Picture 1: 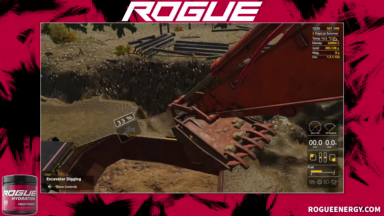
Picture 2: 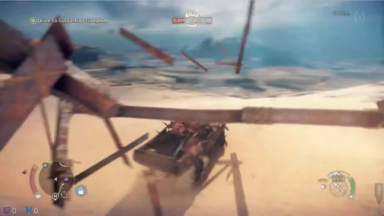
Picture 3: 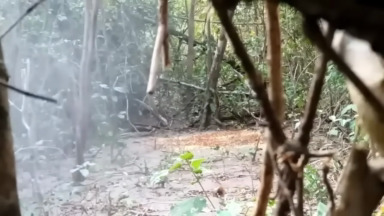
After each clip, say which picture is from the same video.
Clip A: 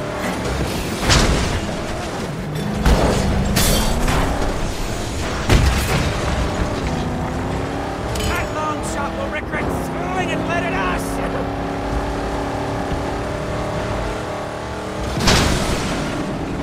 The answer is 2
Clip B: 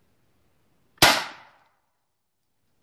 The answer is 3